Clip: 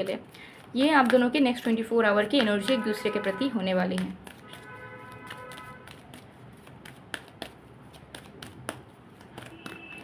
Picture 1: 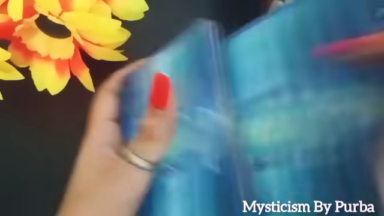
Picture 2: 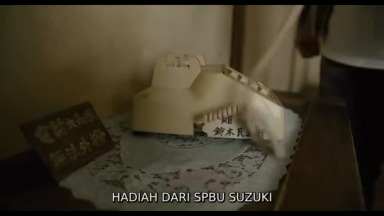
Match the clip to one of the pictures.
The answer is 1